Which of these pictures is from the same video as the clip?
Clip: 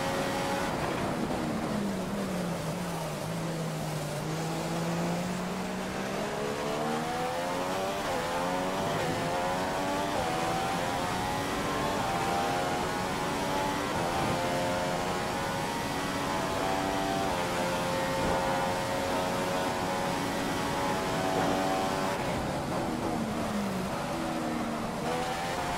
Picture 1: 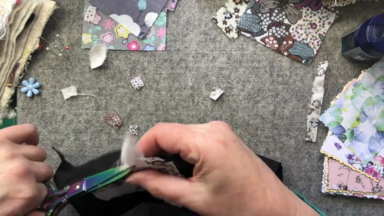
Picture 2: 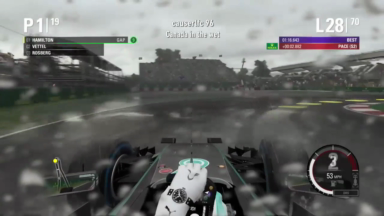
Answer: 2